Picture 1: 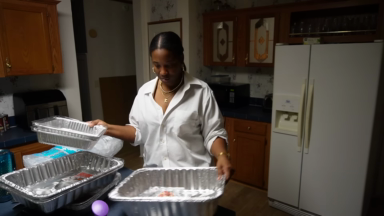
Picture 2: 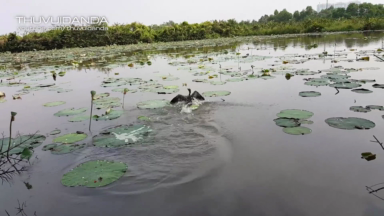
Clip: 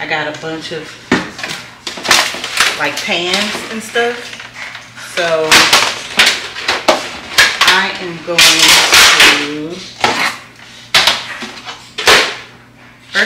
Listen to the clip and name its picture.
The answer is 1